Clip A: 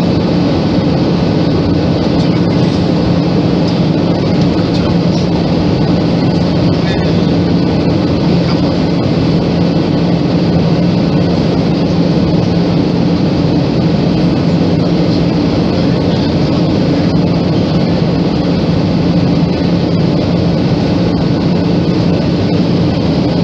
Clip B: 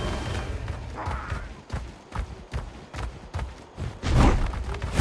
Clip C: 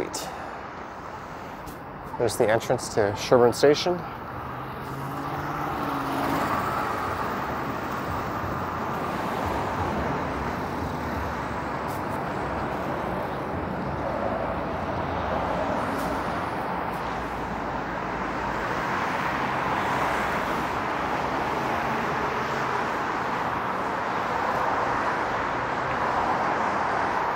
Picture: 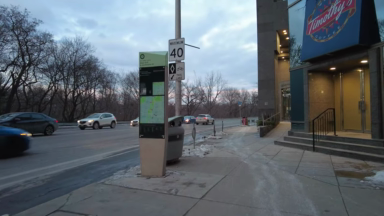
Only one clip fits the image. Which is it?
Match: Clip C